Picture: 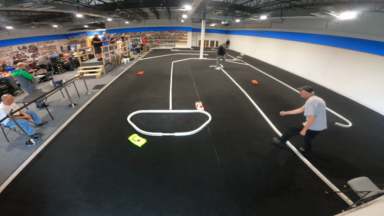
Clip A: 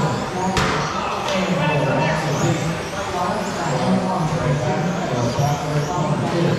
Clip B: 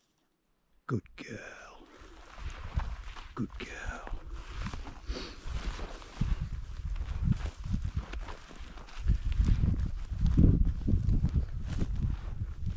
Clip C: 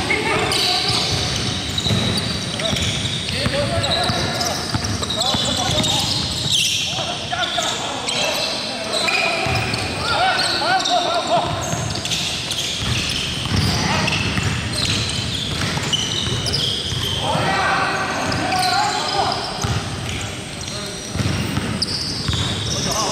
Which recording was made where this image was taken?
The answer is A